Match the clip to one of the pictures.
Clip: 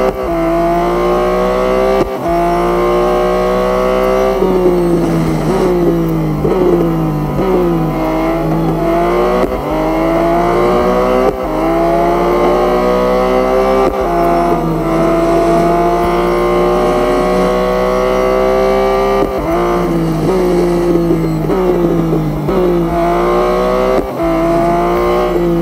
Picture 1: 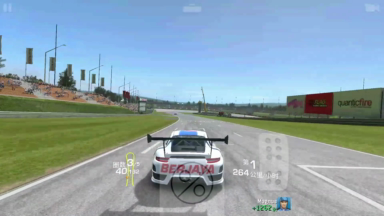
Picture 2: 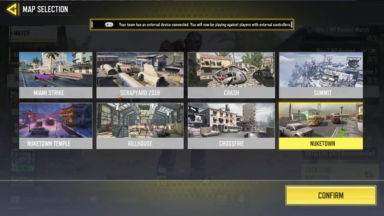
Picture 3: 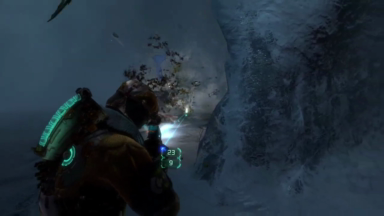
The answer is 1